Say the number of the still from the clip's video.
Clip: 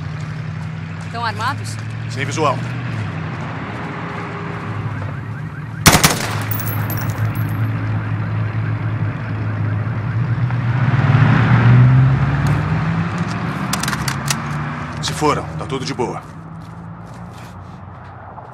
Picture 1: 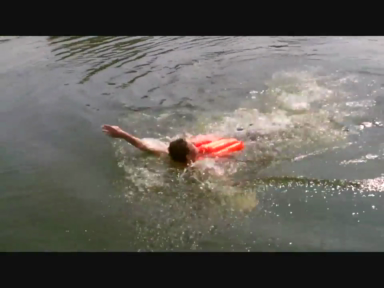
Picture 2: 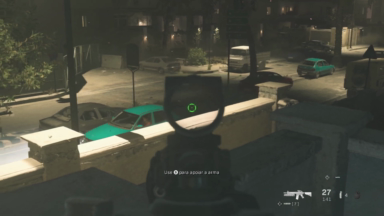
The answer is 2